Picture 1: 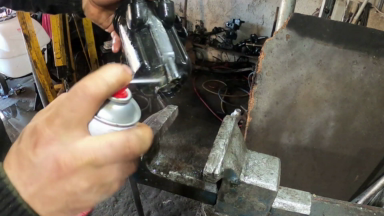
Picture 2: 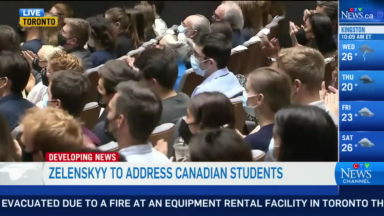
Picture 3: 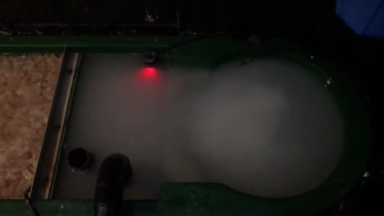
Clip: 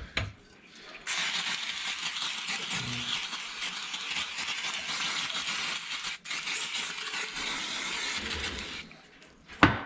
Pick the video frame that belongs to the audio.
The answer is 1